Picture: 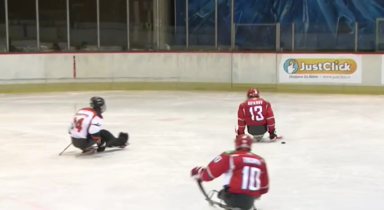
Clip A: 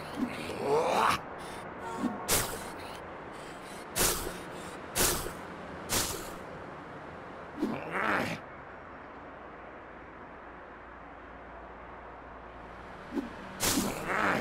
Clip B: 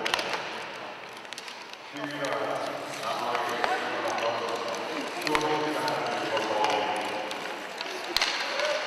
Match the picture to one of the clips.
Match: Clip B